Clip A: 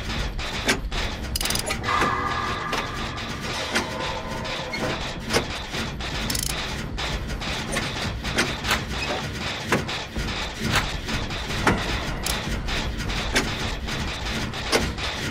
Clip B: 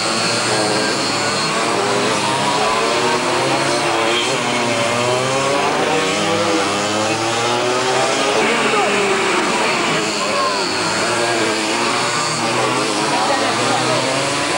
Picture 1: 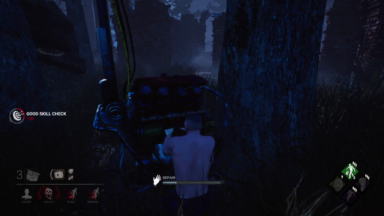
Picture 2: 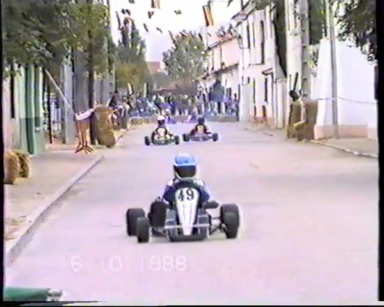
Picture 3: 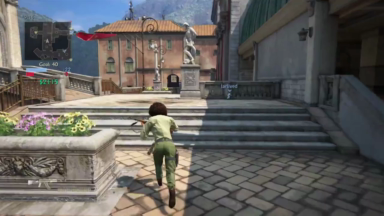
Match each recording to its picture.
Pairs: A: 1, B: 2